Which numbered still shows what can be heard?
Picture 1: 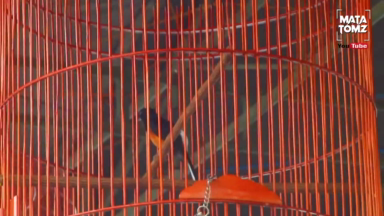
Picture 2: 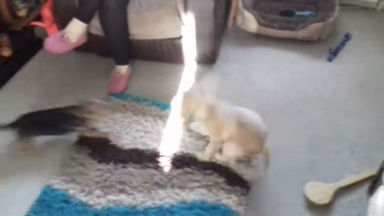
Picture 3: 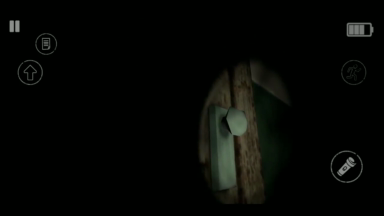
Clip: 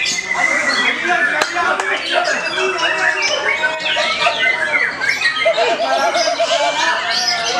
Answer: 1